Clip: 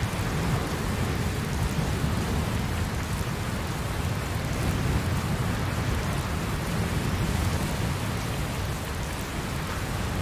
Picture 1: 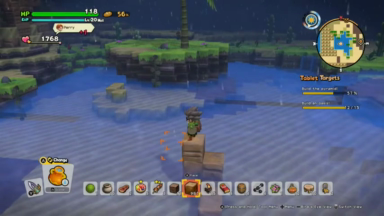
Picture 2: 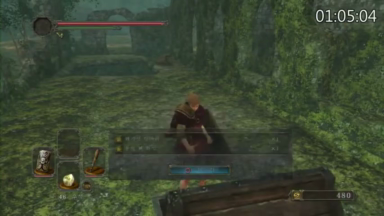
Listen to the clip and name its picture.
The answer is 1